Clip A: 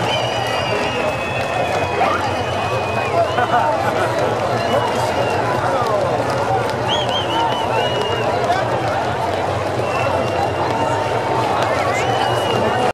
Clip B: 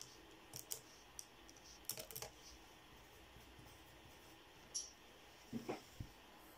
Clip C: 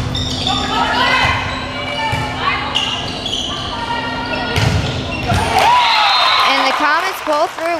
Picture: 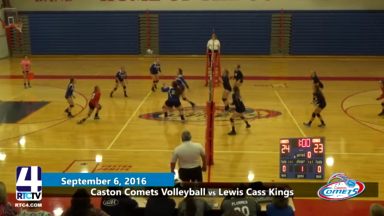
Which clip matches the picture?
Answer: C